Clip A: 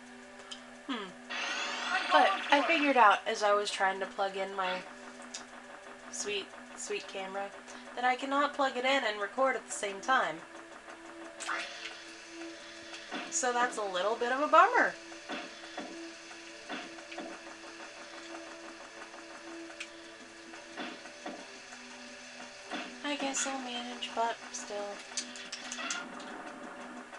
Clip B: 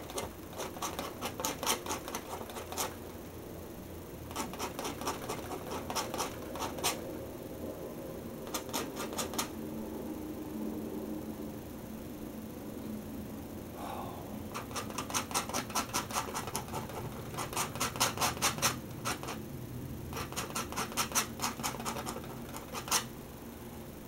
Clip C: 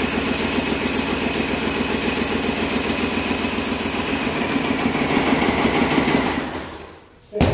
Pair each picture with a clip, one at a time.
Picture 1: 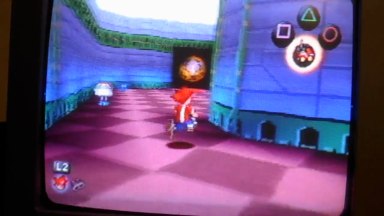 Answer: A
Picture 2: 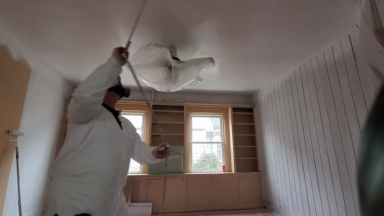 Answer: C